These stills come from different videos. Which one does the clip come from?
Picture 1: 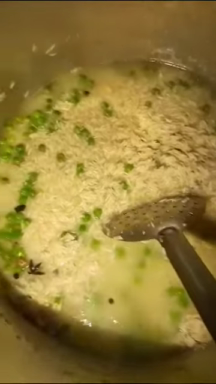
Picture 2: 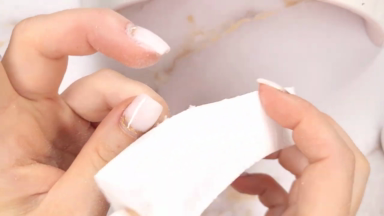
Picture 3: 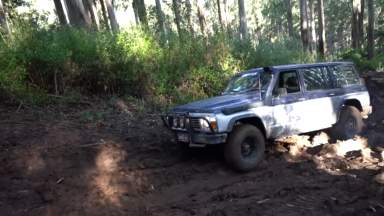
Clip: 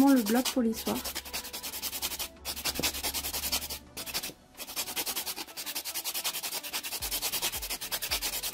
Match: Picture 2